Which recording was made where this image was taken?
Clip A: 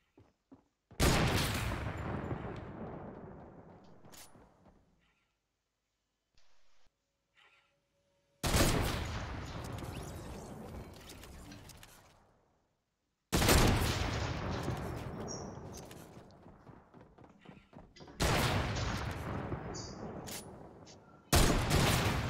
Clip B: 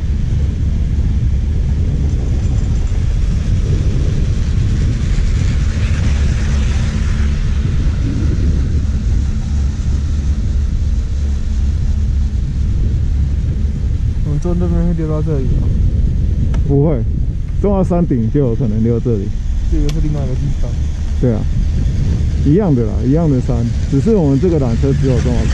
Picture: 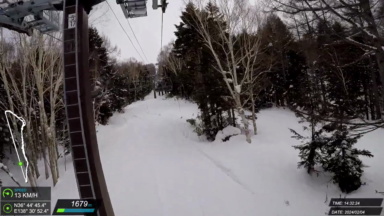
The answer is B